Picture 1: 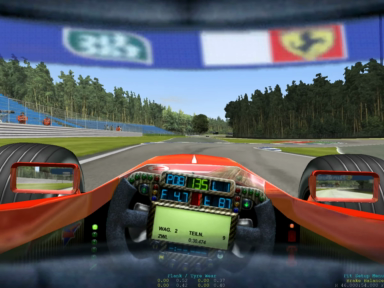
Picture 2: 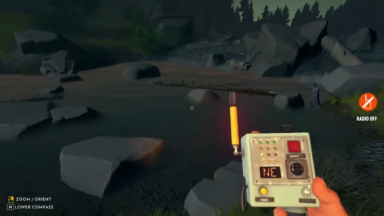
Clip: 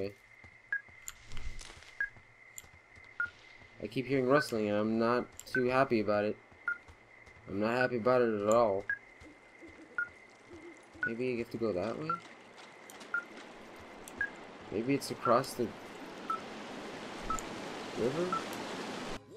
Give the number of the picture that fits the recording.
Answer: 2